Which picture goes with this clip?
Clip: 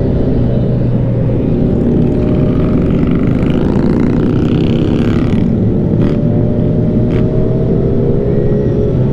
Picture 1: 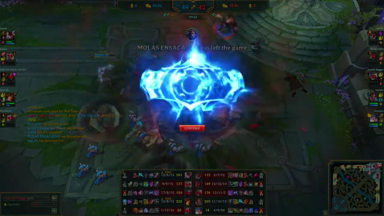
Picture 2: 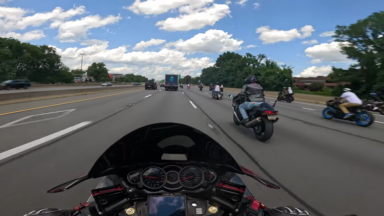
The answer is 2